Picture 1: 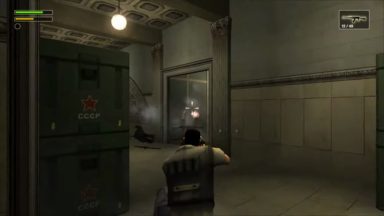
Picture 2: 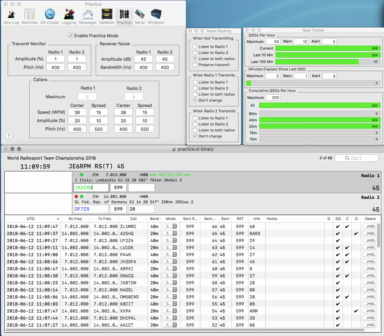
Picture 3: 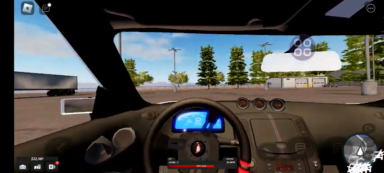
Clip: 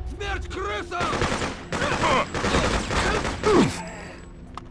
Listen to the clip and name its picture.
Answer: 1